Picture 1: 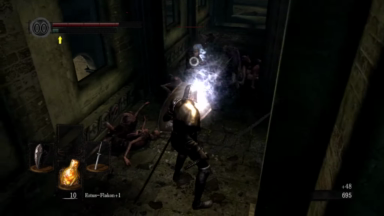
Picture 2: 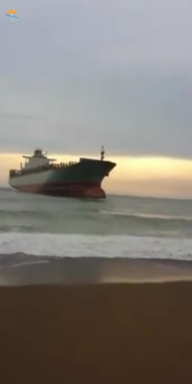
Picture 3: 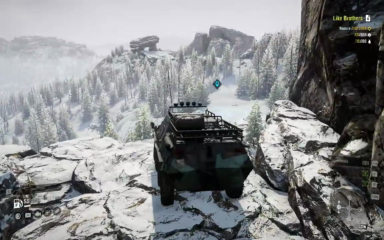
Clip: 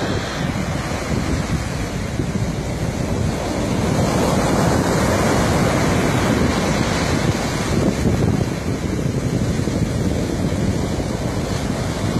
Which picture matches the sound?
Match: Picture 2